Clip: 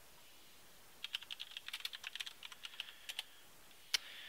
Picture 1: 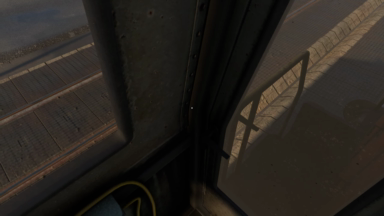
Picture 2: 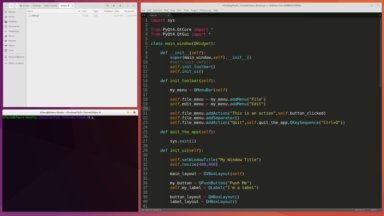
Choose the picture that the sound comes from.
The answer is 2